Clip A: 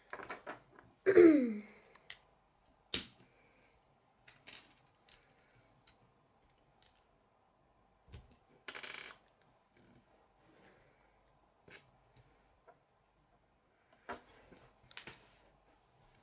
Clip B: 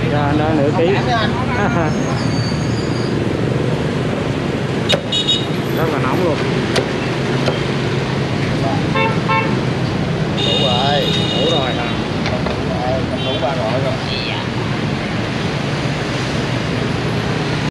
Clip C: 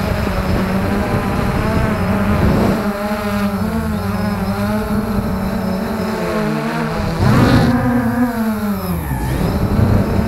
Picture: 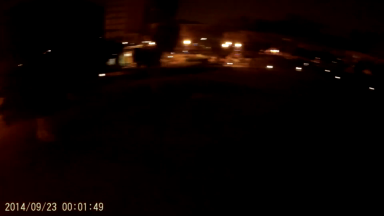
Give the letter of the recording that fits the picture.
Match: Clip C